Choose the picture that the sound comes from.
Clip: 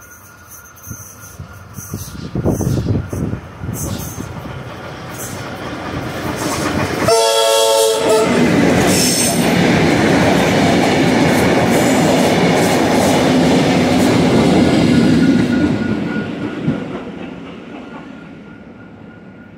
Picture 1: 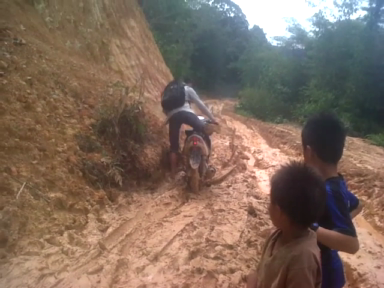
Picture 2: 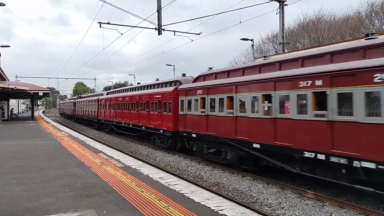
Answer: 2